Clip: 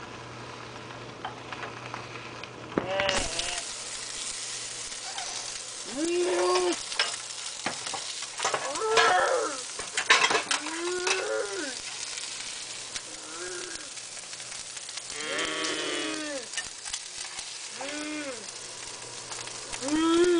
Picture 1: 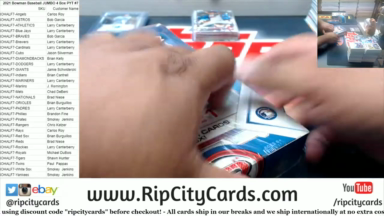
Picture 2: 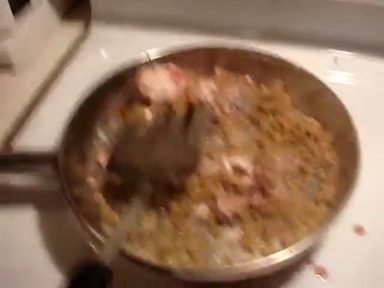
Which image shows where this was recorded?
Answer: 2